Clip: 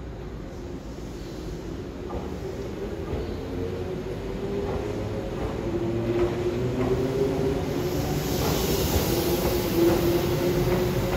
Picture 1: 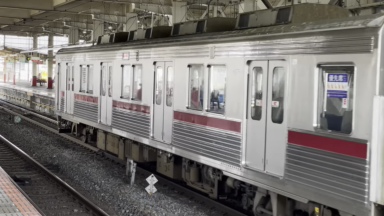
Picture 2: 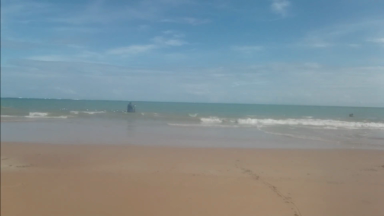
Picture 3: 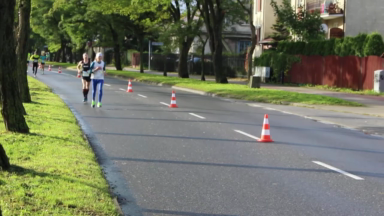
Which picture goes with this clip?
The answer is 1